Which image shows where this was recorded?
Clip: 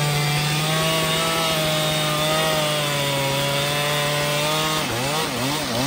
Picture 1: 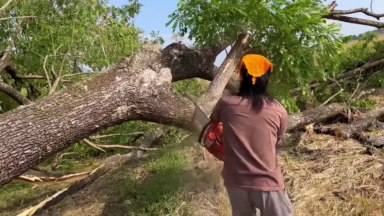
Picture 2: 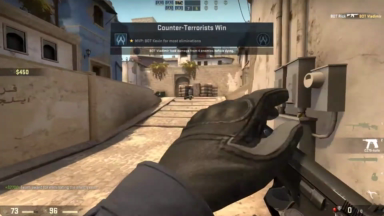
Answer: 1